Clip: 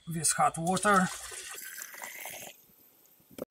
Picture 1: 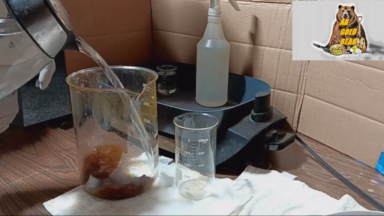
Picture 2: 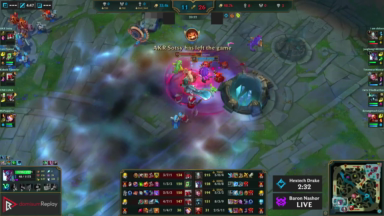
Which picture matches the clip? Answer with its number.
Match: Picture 1